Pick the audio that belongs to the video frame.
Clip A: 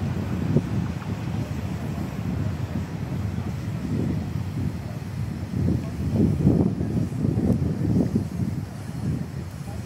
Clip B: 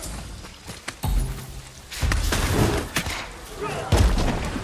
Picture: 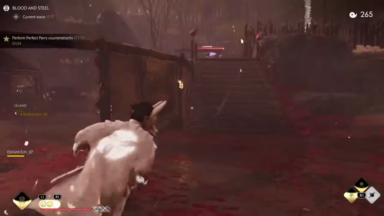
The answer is B